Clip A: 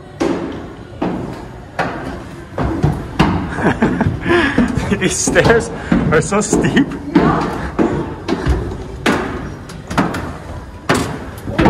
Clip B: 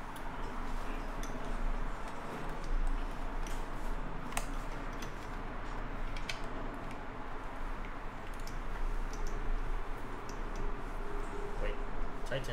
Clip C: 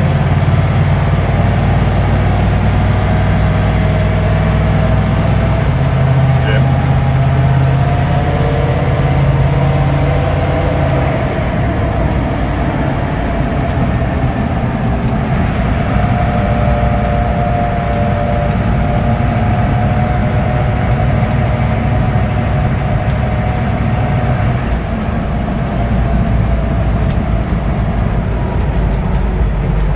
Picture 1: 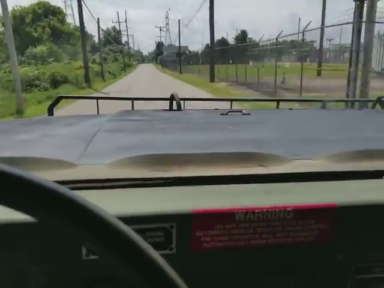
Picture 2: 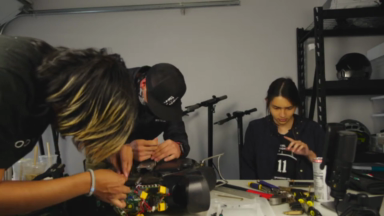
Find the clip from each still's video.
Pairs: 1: C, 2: B